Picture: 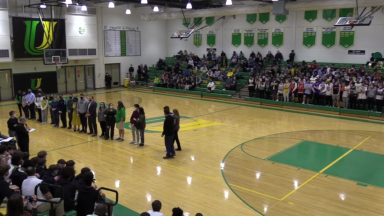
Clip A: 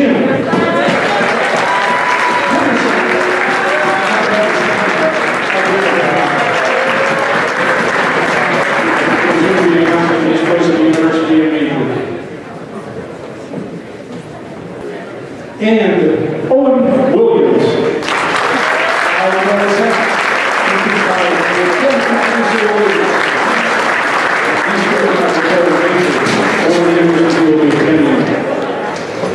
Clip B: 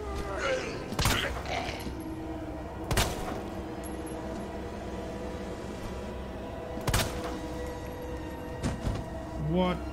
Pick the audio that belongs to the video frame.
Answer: A